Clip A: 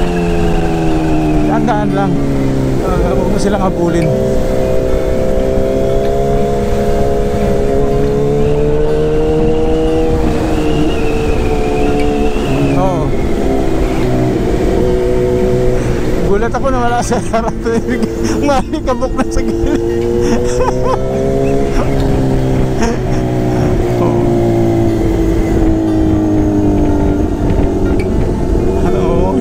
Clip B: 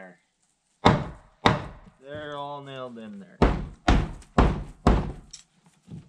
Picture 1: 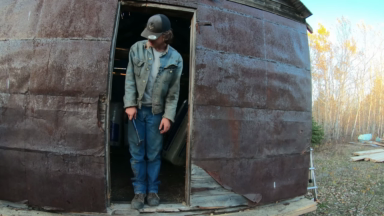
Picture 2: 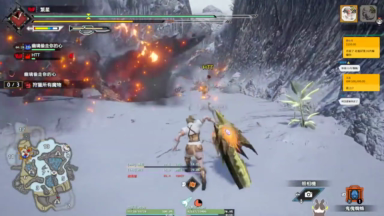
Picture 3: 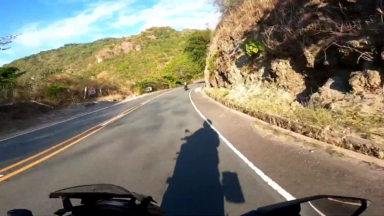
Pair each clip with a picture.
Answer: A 3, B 1